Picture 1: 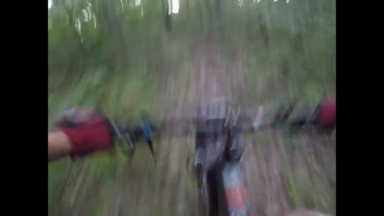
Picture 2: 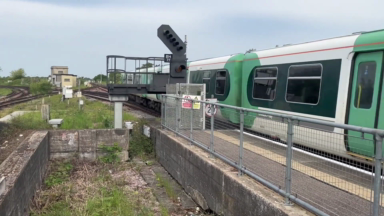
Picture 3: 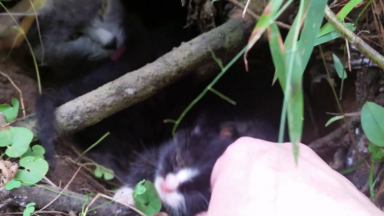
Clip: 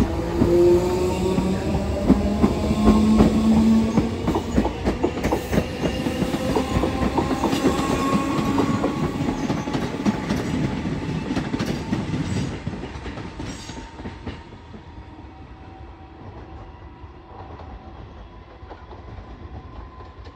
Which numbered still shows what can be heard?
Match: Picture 2